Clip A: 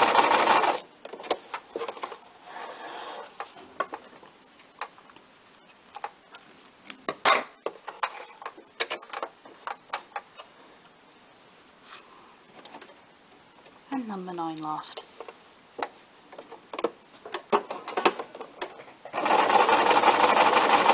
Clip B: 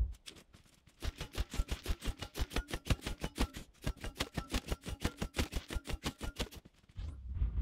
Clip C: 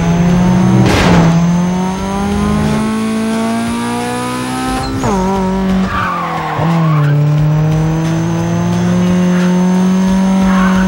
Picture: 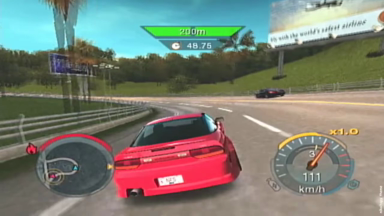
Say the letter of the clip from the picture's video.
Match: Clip C